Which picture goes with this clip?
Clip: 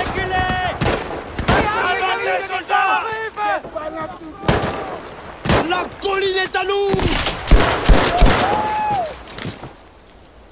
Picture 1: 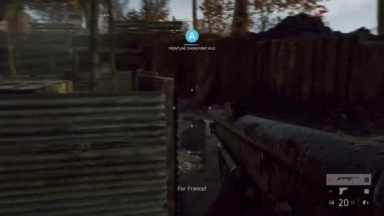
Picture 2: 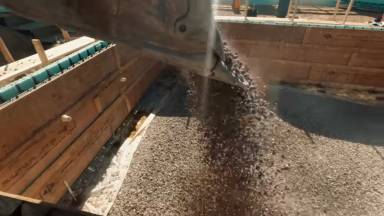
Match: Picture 1